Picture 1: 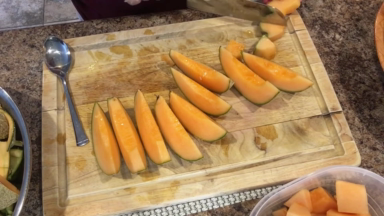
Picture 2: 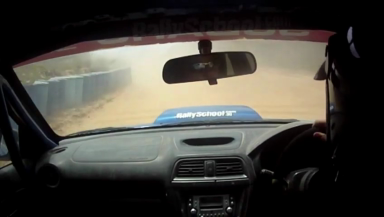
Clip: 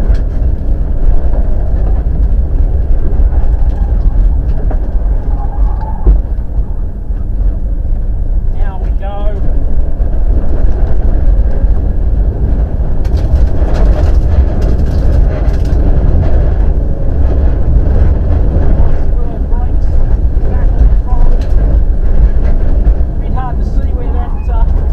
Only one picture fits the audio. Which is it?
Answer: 2